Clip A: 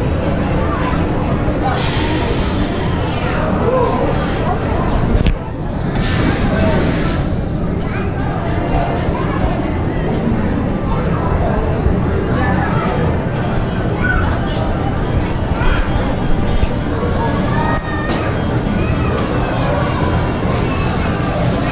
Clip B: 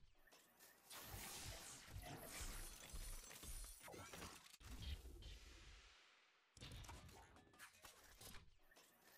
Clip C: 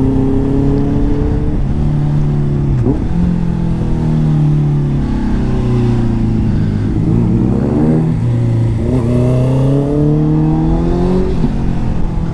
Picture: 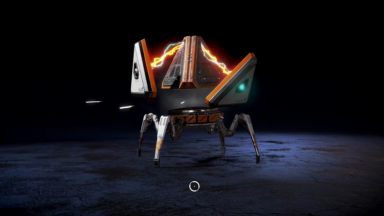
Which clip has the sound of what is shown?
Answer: B